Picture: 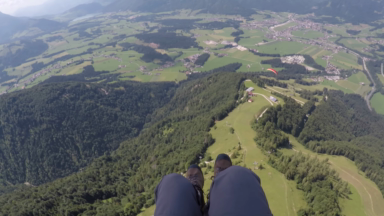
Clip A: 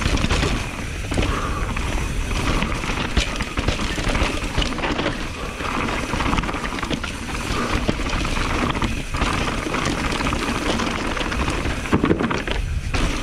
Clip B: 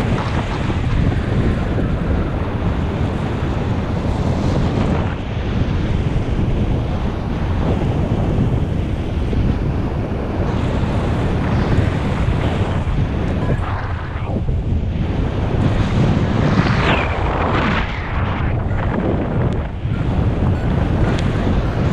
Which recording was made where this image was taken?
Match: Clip B